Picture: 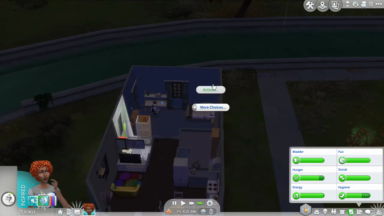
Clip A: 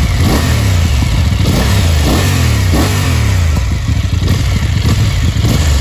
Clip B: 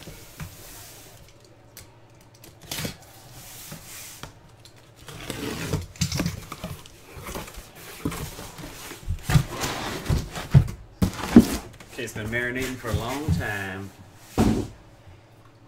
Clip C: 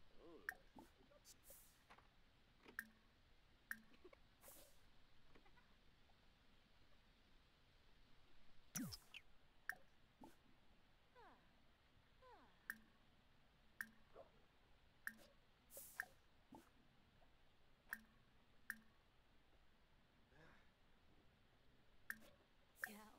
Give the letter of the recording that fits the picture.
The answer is C